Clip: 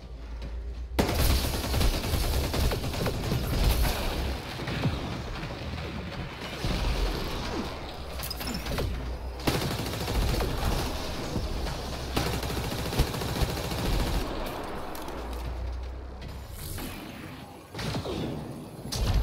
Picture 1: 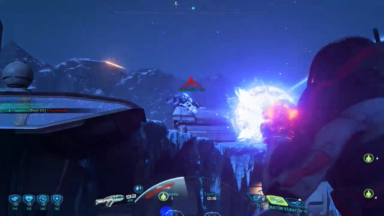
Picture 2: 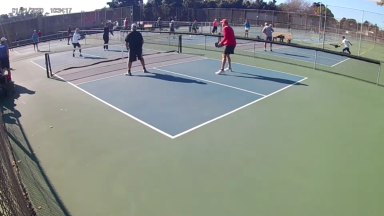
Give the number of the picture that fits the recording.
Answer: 1